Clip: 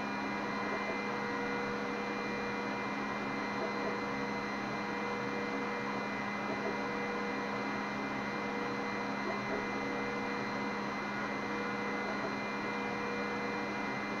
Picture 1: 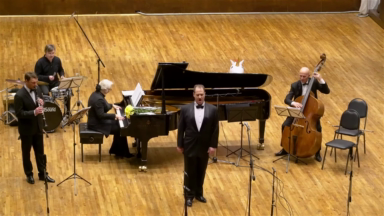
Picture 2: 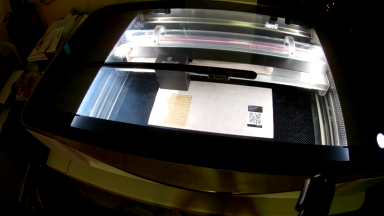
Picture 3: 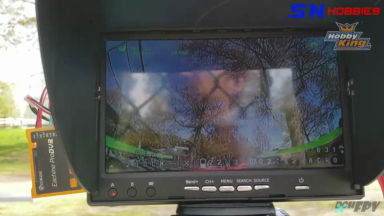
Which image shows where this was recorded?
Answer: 2